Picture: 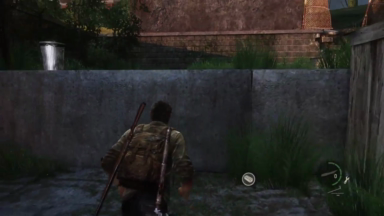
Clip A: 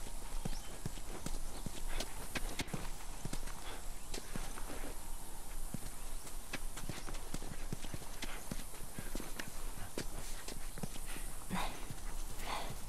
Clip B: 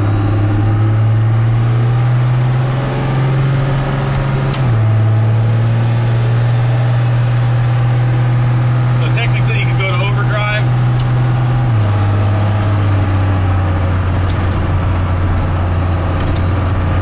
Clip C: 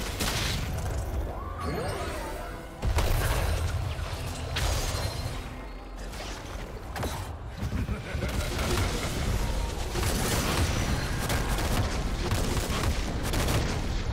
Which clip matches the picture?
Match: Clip A